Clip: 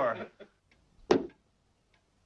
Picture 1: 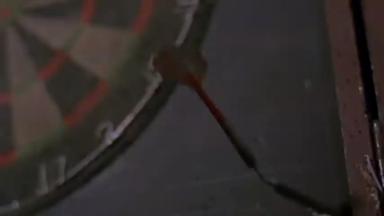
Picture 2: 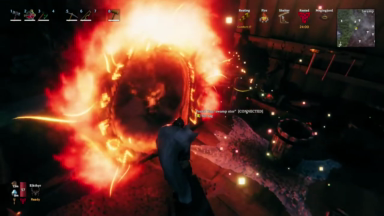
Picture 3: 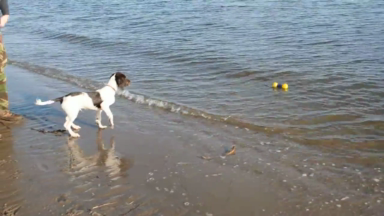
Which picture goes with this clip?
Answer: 1